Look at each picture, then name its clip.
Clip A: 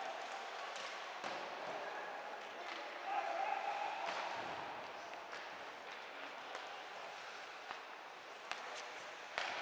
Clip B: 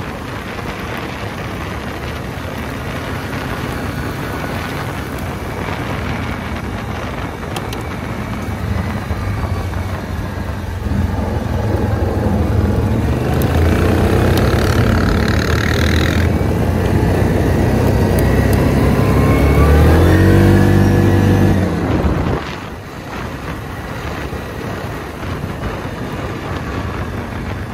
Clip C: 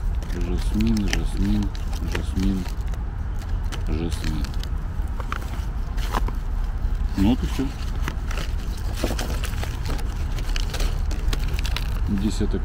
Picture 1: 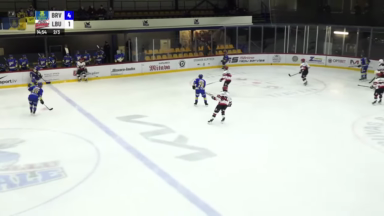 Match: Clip A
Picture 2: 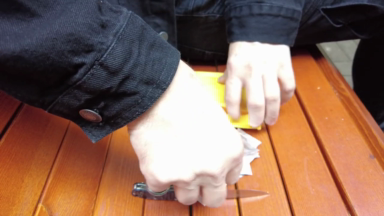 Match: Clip C